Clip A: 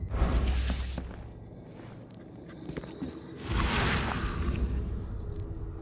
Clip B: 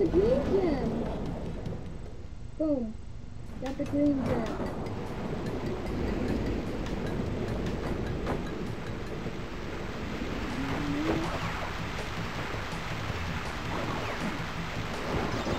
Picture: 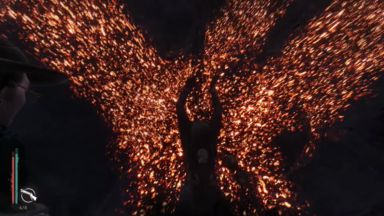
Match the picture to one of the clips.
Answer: A